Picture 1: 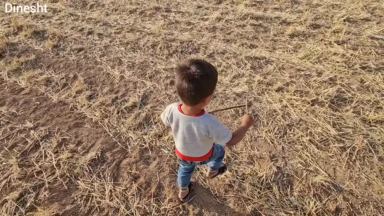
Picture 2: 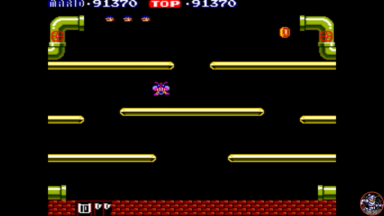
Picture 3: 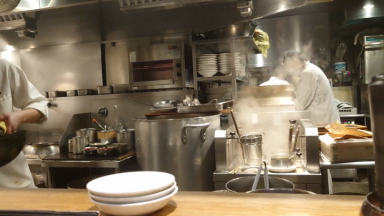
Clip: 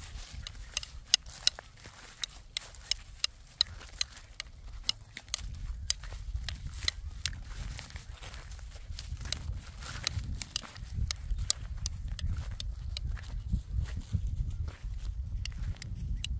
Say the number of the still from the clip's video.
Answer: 1